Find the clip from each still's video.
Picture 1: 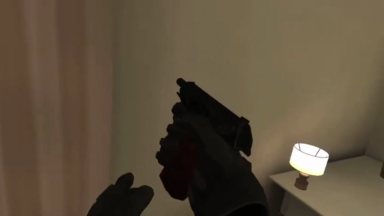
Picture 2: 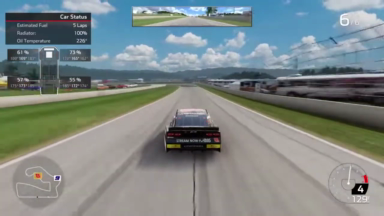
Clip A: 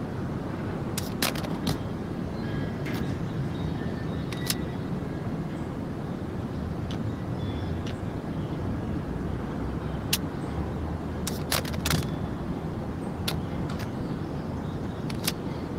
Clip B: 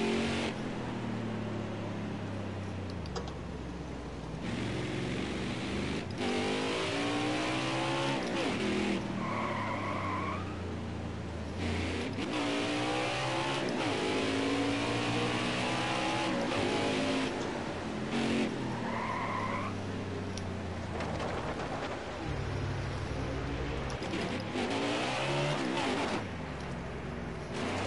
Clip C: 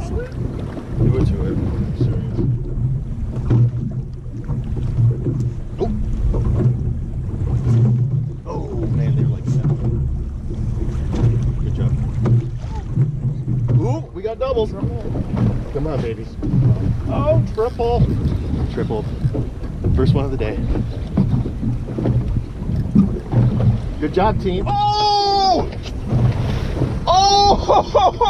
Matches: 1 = A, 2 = B